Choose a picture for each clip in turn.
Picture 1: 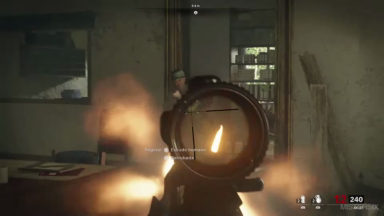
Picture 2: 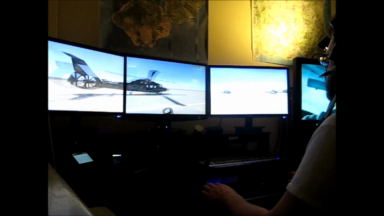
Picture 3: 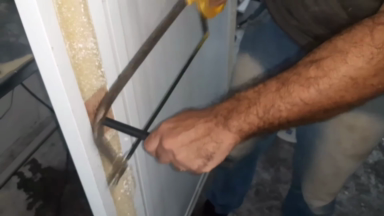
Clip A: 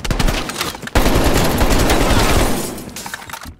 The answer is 1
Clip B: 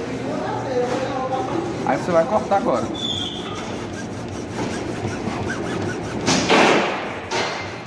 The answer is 3